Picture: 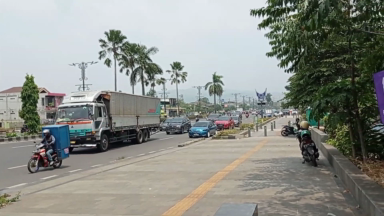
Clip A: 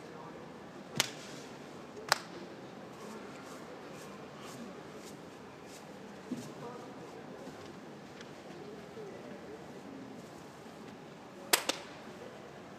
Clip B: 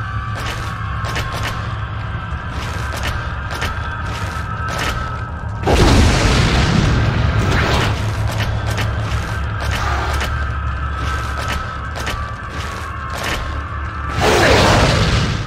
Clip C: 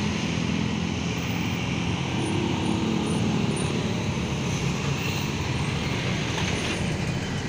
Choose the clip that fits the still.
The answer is C